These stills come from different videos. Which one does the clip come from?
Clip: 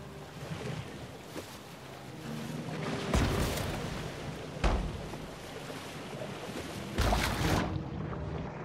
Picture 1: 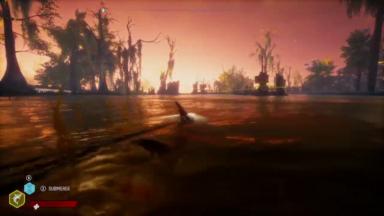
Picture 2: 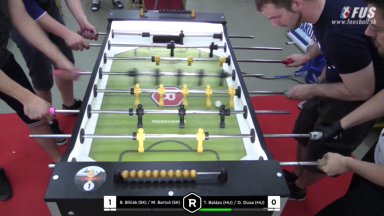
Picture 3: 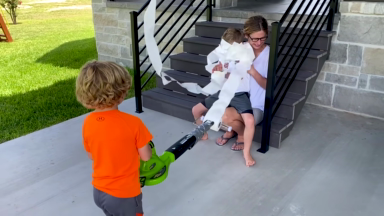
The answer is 1